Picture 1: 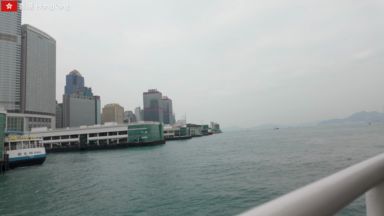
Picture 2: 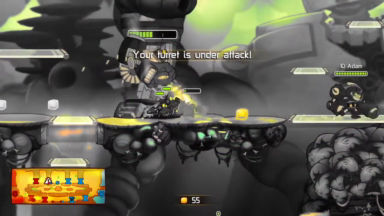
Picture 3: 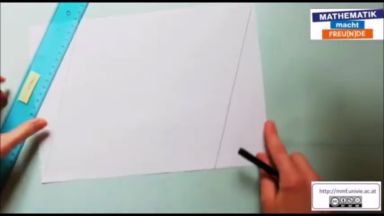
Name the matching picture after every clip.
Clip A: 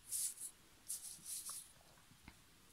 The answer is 3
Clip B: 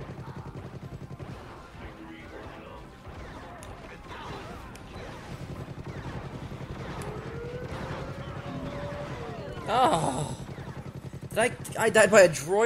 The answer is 2